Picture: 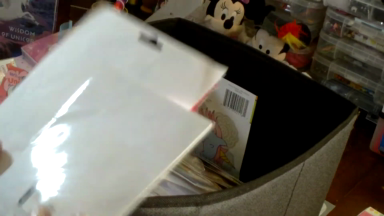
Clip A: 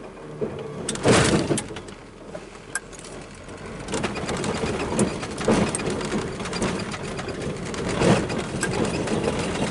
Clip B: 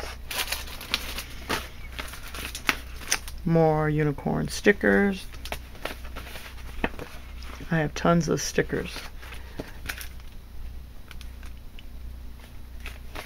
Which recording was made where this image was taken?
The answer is B